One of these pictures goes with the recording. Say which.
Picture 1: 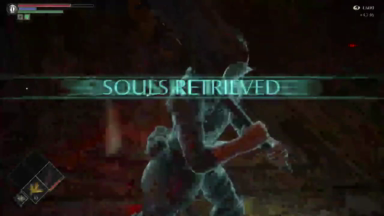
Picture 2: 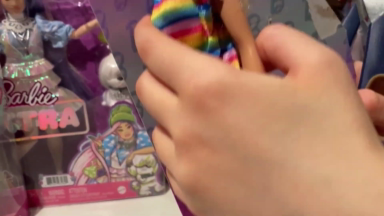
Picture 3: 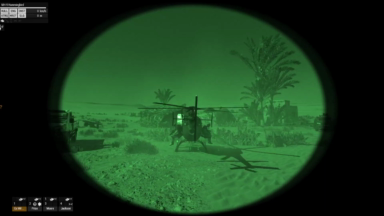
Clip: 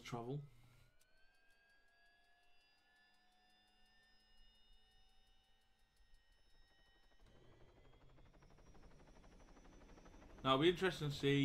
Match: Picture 3